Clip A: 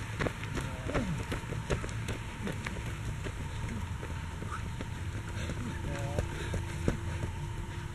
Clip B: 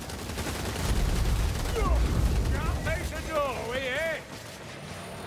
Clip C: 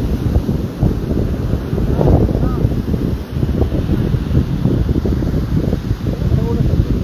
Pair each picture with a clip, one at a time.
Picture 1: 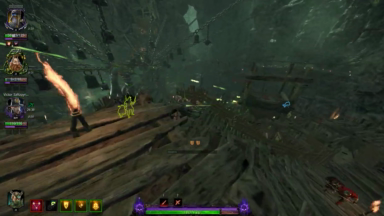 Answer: B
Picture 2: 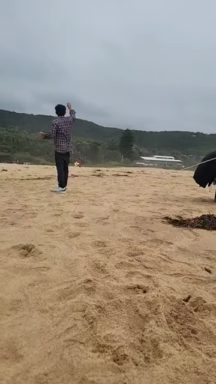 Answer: C